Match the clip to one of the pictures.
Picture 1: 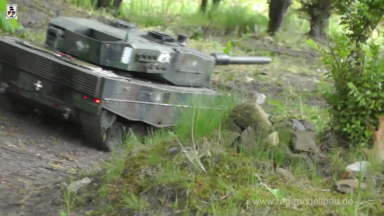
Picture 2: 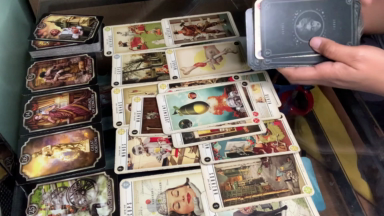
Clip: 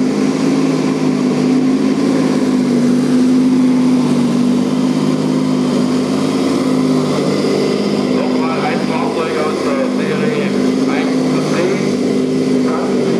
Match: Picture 1